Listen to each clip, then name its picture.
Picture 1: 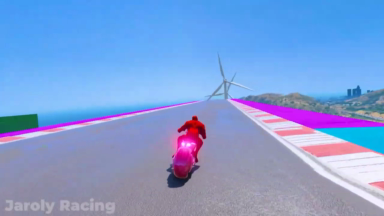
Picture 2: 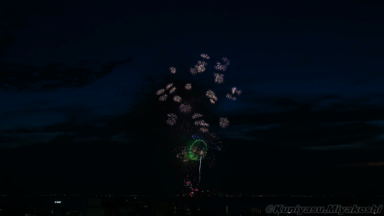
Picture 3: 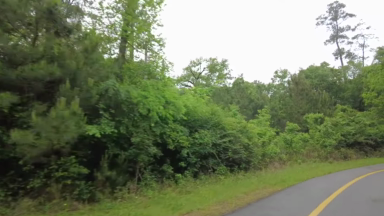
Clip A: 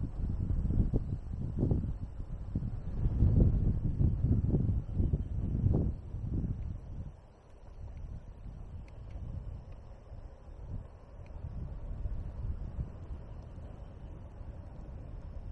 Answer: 3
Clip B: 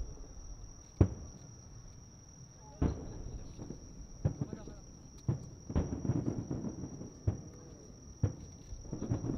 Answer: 2